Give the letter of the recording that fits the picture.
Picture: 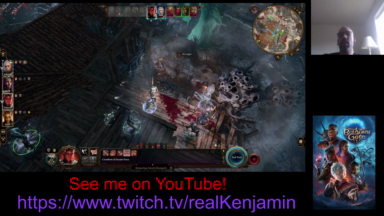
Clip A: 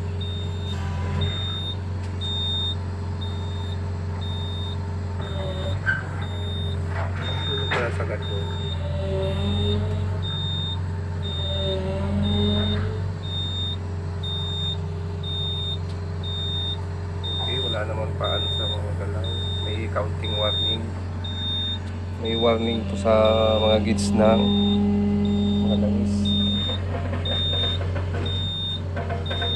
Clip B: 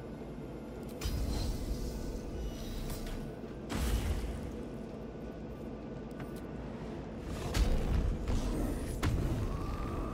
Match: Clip B